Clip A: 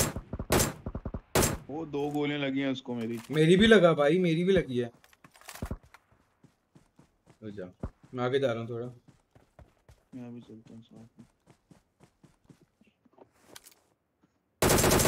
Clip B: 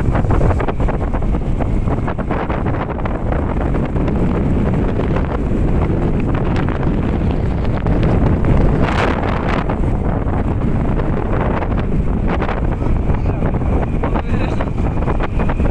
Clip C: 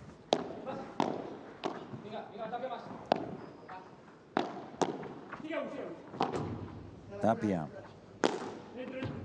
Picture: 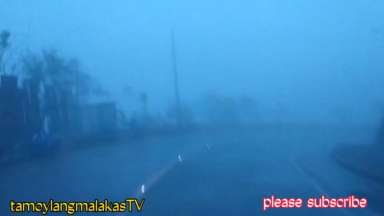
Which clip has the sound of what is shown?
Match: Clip B